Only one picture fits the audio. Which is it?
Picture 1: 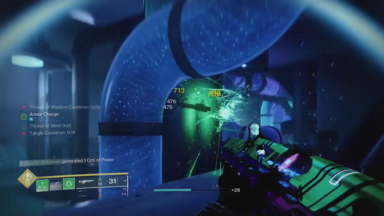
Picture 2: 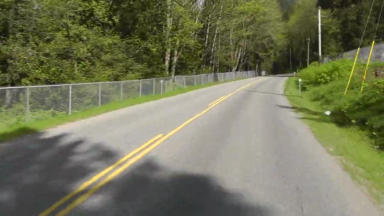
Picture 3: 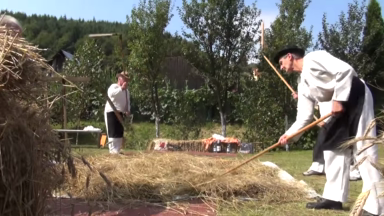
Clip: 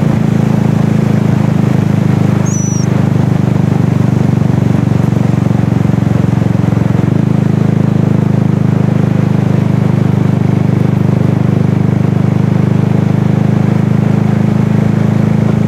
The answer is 2